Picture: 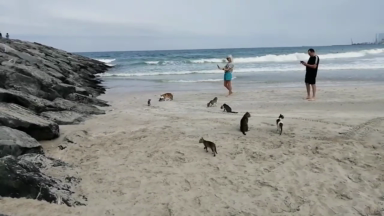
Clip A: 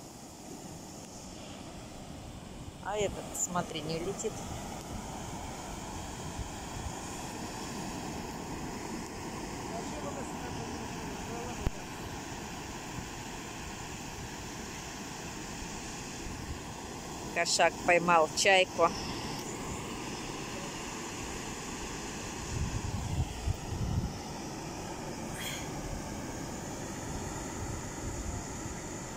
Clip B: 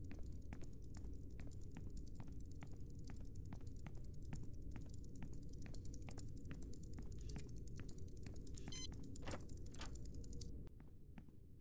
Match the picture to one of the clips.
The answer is A